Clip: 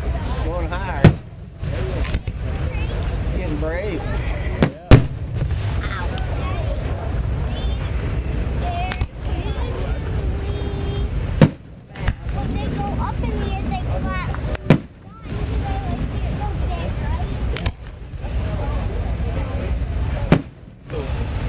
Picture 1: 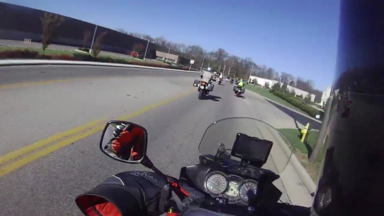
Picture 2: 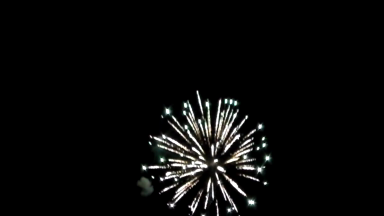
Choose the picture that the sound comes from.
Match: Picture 2